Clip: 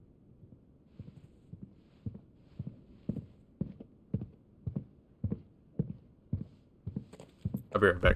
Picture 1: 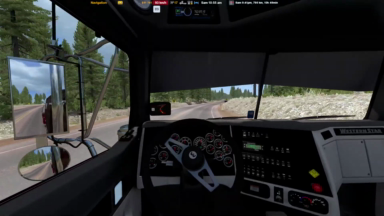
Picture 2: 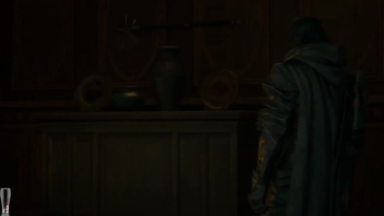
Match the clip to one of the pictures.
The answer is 2